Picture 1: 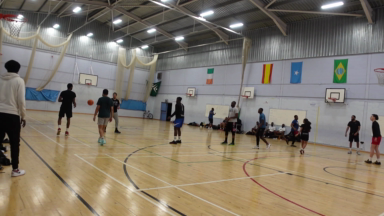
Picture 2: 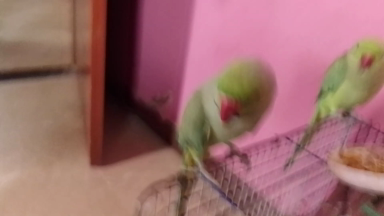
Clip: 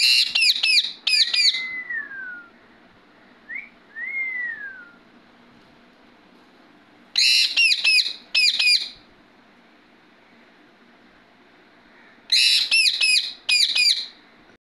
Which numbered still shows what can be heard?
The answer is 2